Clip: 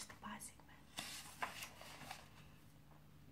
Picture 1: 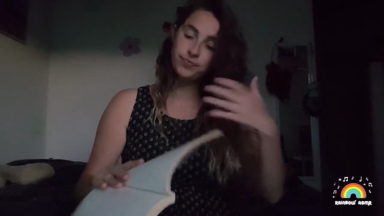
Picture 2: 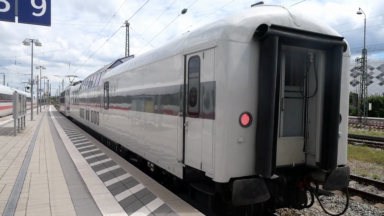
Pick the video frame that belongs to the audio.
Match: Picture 1